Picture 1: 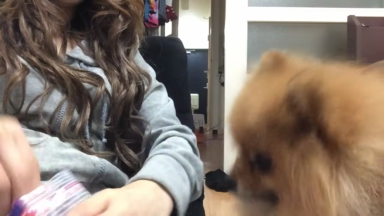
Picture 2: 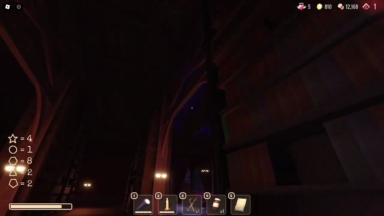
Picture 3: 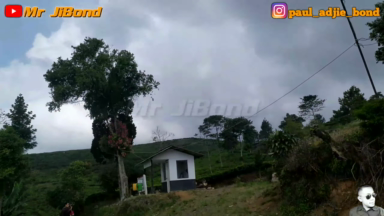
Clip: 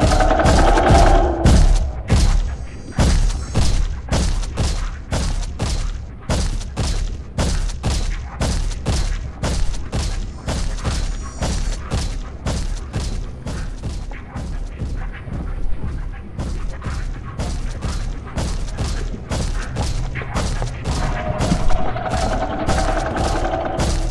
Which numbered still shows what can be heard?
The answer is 2